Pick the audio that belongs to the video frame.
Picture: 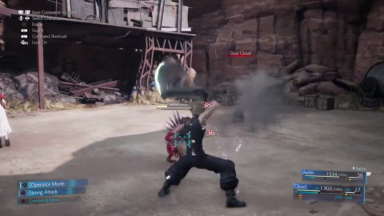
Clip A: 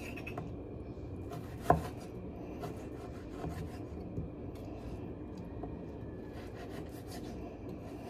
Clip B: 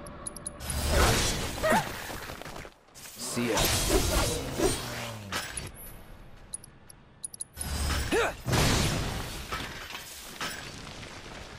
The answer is B